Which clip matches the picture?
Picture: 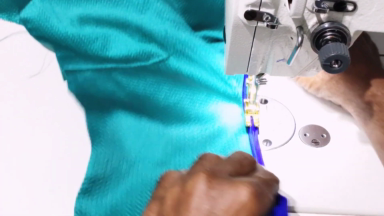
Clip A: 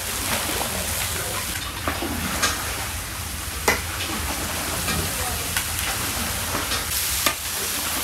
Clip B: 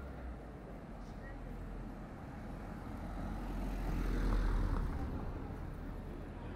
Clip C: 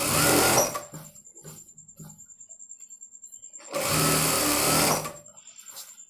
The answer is C